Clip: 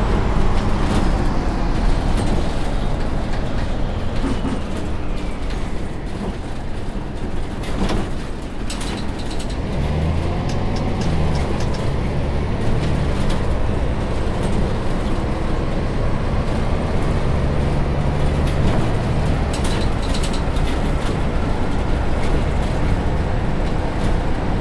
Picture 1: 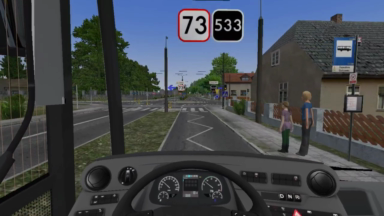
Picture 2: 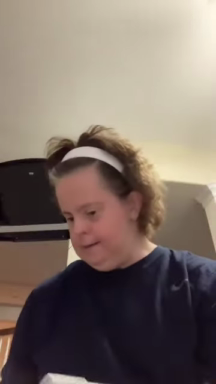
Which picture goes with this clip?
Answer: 1